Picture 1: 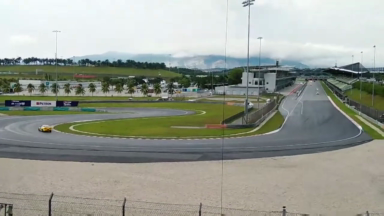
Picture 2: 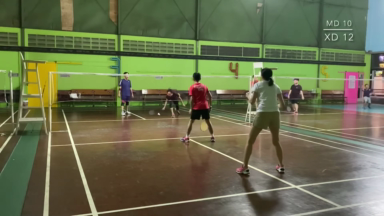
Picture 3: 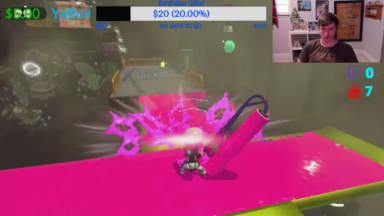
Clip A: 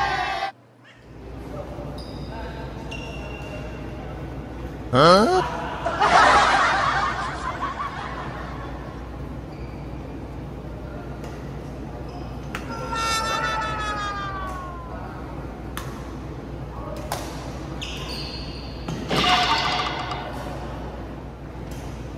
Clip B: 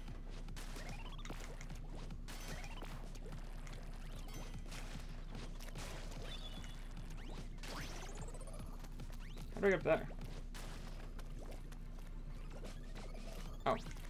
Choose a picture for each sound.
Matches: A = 2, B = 3